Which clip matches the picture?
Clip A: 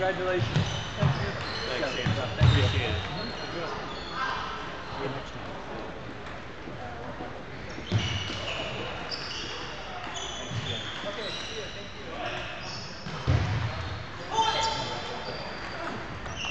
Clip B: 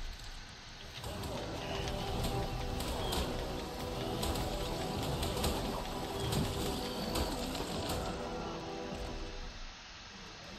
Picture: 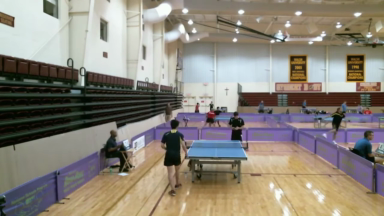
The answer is A